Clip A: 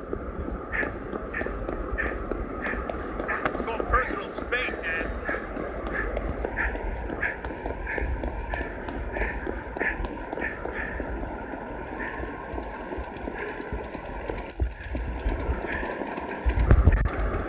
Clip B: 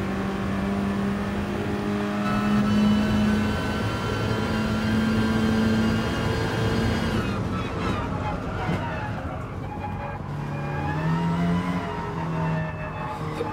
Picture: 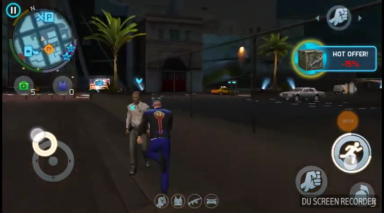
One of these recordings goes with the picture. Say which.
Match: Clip A